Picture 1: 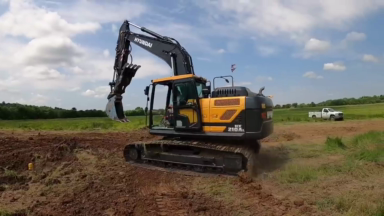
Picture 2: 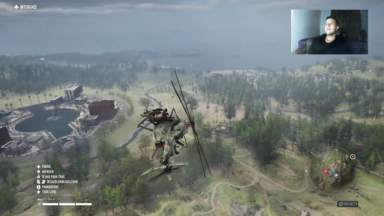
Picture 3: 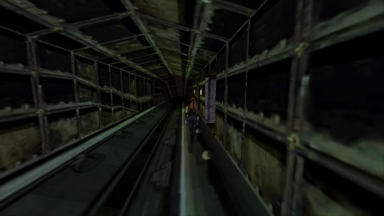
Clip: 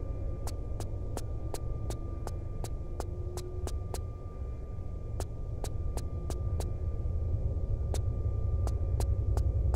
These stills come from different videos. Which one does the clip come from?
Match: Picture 3